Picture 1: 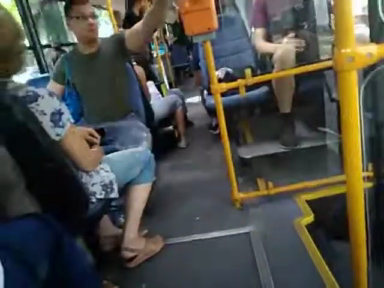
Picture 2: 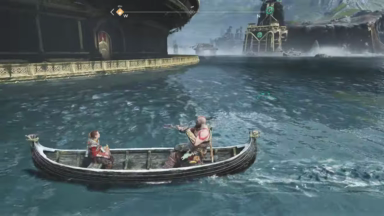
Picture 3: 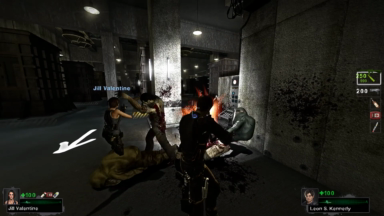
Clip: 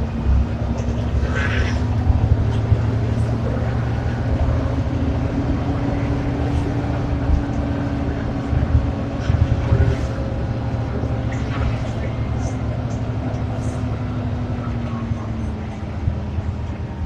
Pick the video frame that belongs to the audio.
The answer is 1